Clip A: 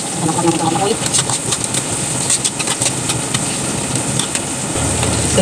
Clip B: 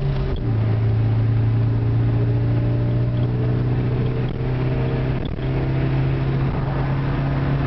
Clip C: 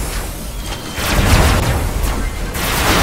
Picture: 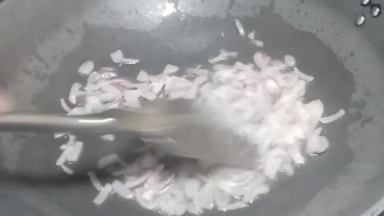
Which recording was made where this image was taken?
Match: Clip A